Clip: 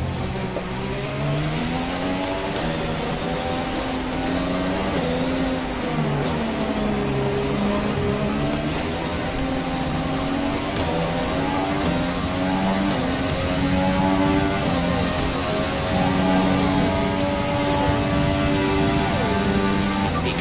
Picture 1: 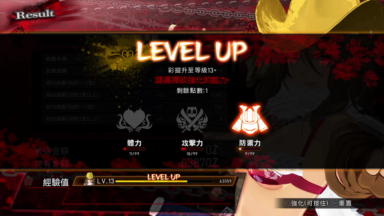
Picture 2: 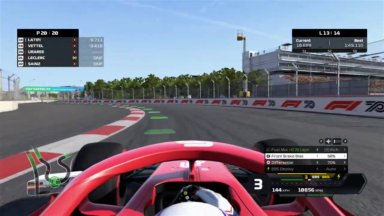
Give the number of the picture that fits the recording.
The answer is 2